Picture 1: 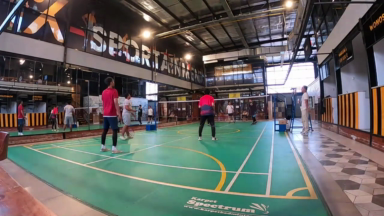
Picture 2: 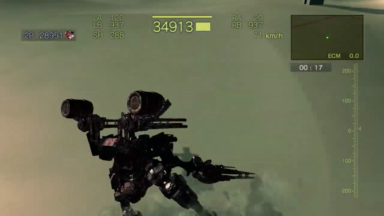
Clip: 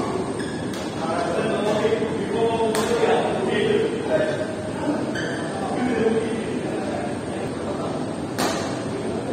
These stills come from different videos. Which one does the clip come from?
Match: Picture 1